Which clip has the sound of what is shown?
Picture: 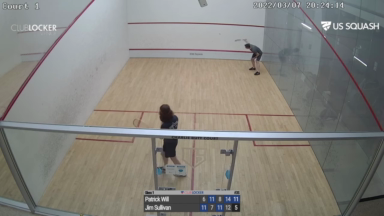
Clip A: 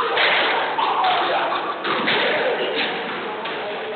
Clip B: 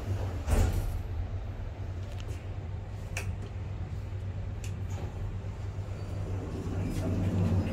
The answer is A